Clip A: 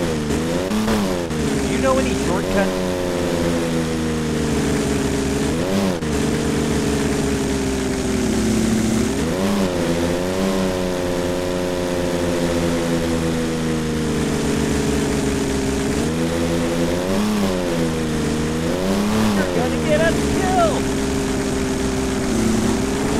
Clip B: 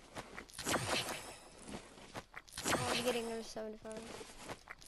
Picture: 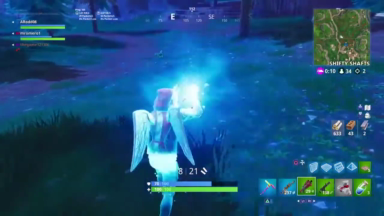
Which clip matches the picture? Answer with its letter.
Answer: B